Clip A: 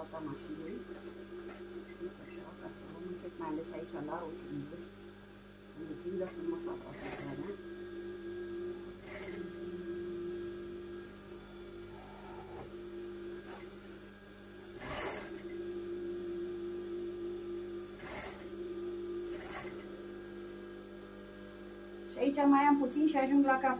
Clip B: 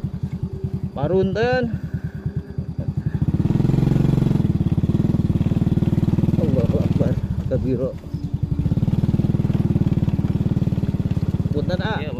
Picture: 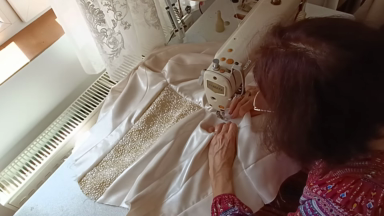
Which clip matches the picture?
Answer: A